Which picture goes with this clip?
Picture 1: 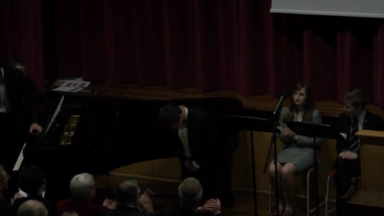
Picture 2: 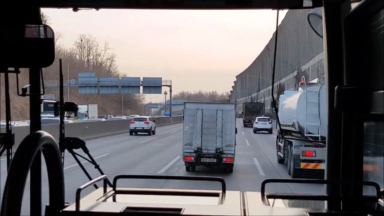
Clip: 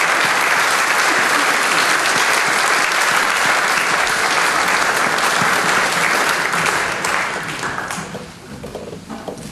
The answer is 1